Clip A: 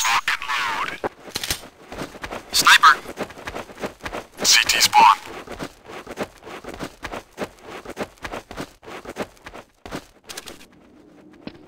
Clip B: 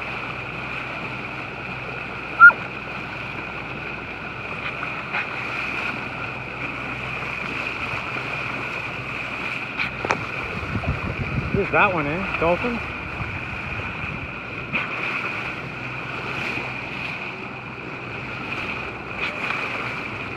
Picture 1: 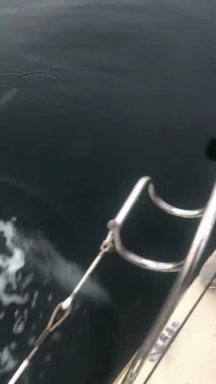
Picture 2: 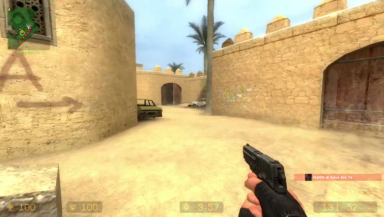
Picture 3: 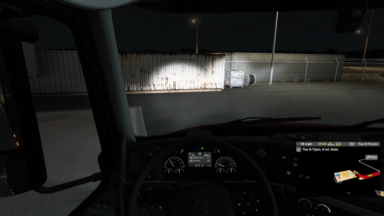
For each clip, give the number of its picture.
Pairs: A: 2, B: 1